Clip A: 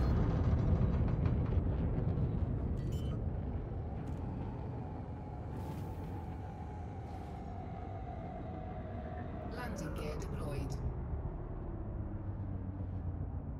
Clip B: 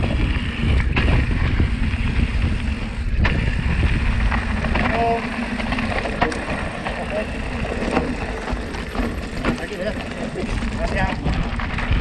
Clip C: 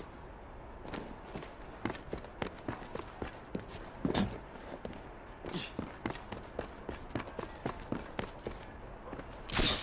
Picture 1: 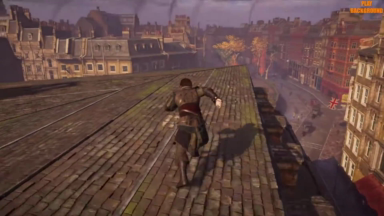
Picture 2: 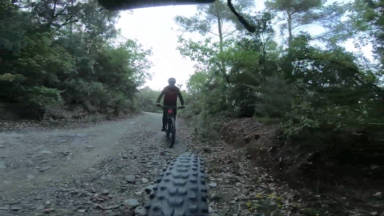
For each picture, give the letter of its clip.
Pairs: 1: C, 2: B